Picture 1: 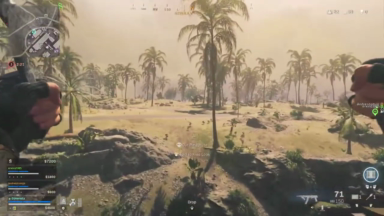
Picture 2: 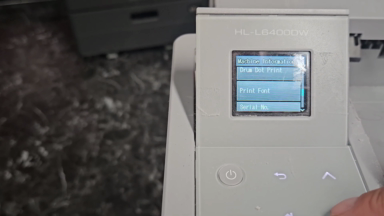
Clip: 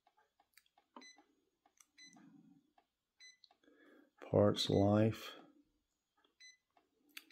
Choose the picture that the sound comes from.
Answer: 2